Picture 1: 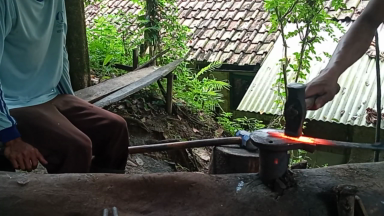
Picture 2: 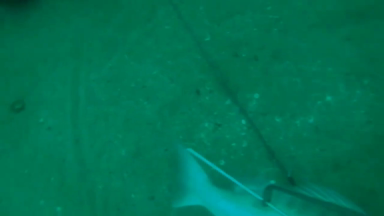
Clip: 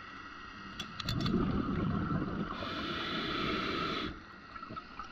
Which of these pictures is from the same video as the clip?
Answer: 2